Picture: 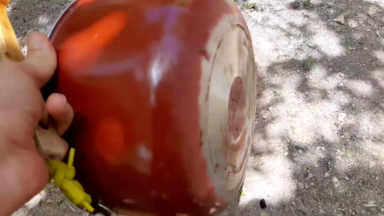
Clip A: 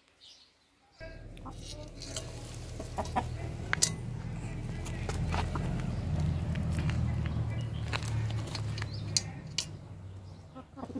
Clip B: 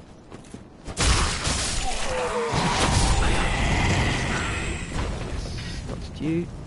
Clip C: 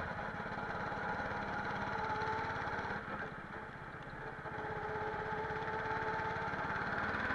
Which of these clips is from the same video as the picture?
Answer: A